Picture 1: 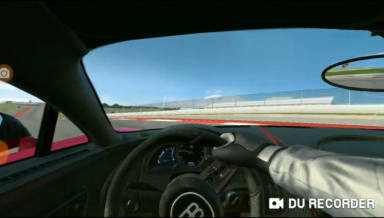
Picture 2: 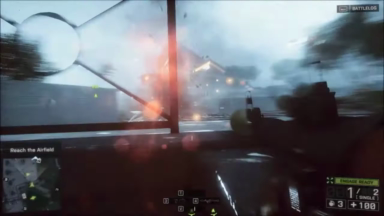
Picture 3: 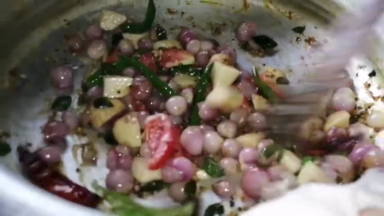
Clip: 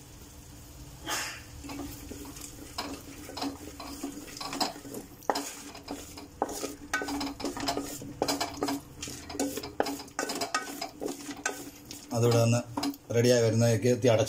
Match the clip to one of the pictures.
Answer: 3